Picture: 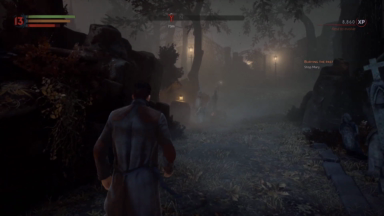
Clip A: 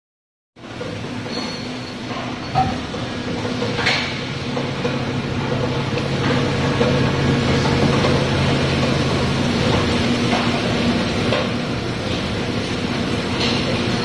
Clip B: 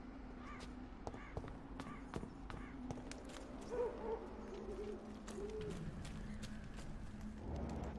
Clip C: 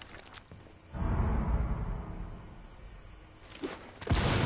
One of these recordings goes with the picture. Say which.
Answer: B